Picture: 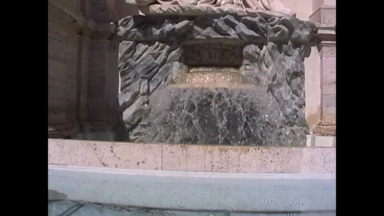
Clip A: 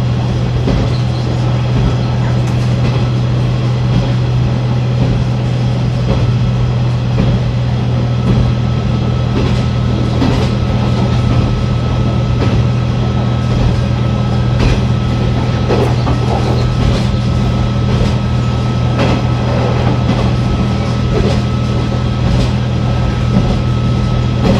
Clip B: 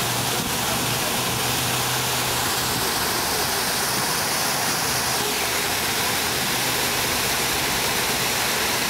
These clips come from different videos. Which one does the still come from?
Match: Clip B